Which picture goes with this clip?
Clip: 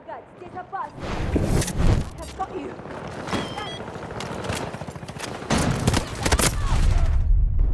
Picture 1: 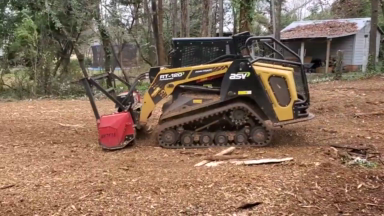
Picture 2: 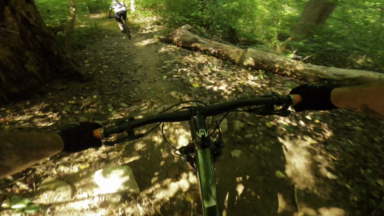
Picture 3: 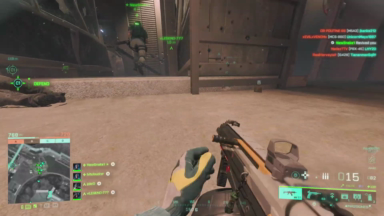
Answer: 3